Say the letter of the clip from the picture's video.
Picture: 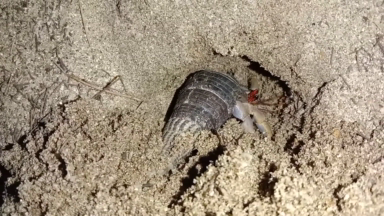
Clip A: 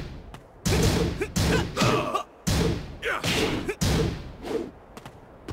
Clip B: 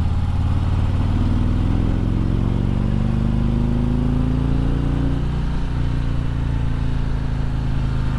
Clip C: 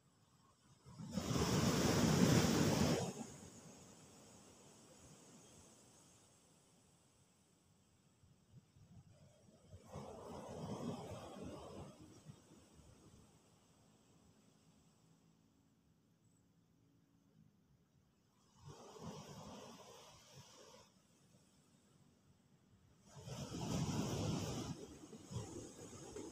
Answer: C